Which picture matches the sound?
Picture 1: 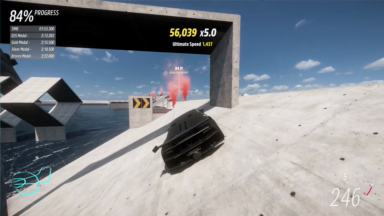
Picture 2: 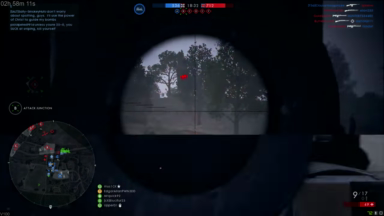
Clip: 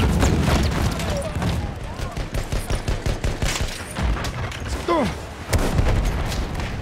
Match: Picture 2